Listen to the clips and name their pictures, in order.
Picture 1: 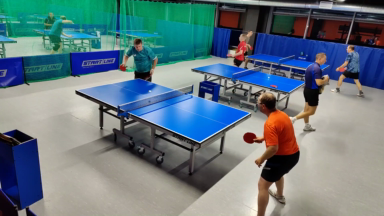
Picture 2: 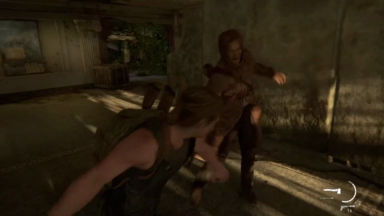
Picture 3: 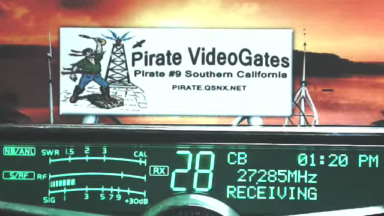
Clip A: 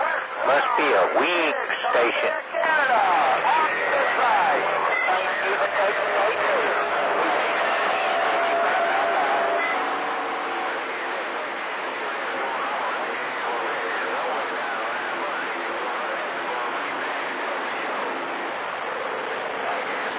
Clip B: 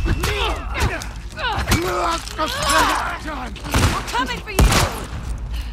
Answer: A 3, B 2